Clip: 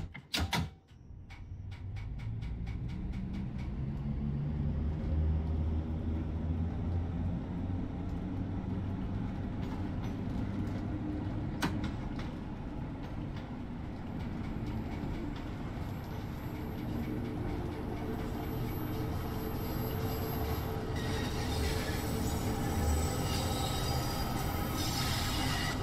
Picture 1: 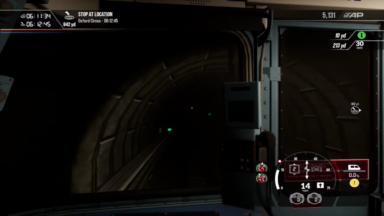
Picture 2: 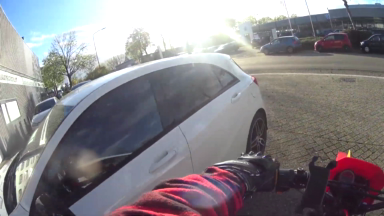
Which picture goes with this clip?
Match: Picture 1